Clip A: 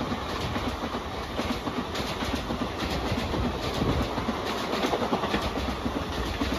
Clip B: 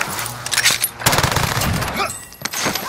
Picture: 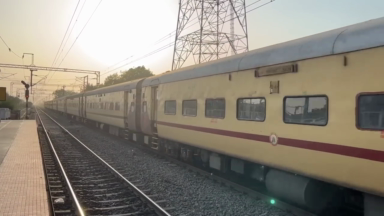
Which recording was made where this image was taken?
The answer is A